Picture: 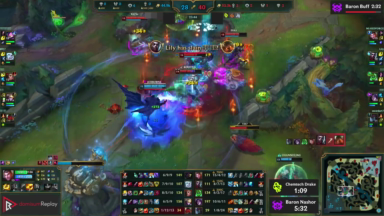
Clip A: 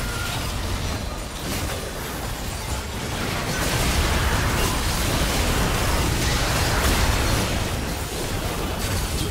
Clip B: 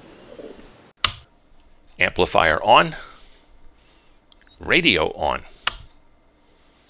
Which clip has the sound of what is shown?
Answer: A